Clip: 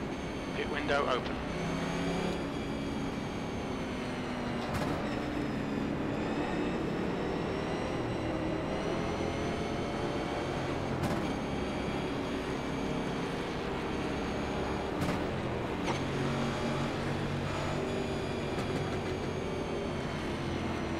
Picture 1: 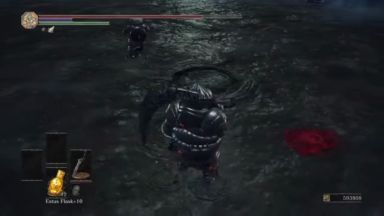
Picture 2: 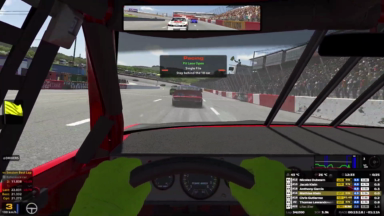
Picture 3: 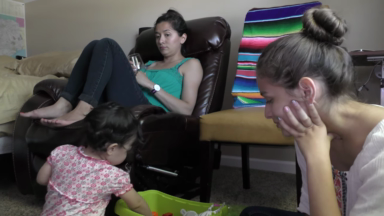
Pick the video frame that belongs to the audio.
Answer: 2